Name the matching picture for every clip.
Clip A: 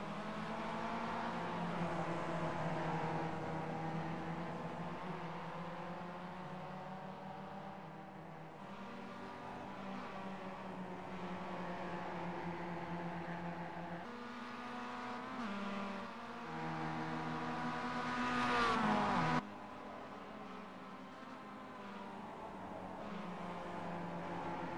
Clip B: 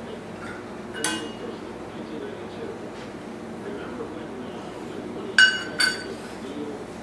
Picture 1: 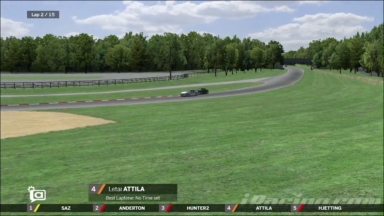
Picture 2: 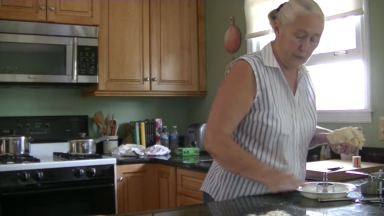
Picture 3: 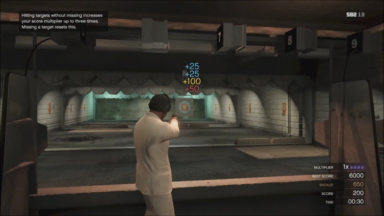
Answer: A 1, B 2